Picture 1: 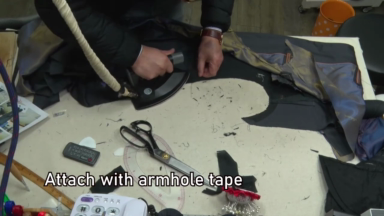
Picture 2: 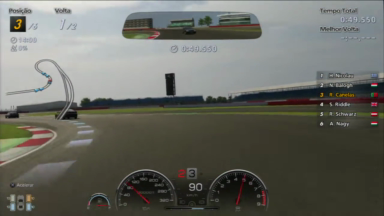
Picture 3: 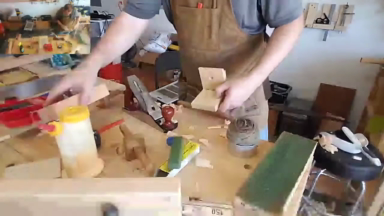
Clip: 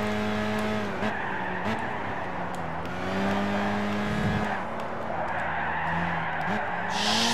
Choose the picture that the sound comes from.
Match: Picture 2